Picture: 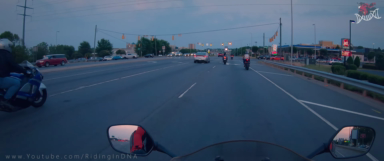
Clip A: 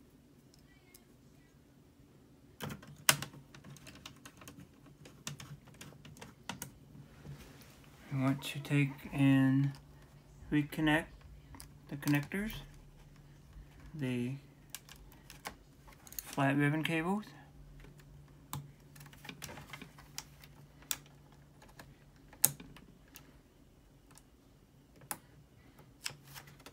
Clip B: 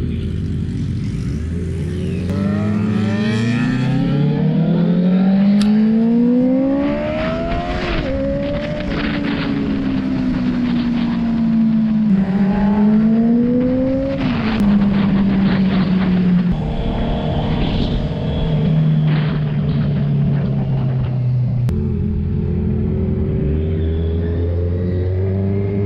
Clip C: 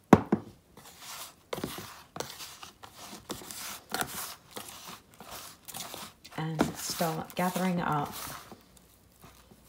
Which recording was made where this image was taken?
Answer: B